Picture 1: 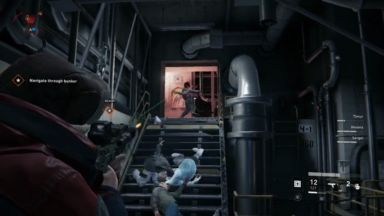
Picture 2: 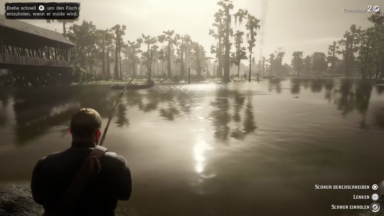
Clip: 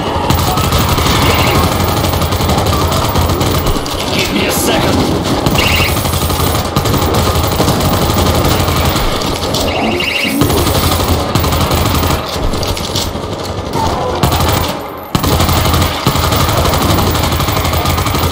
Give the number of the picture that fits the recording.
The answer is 1